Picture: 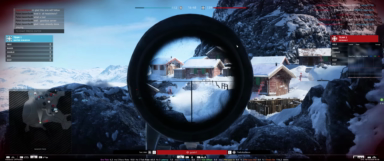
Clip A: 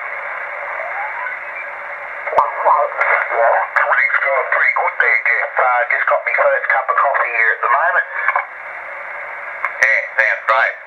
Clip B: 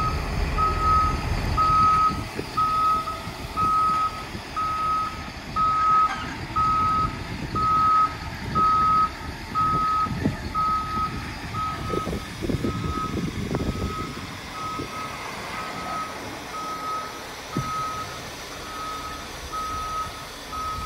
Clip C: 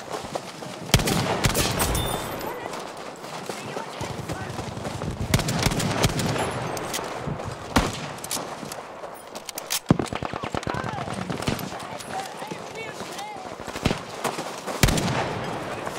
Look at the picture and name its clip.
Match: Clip C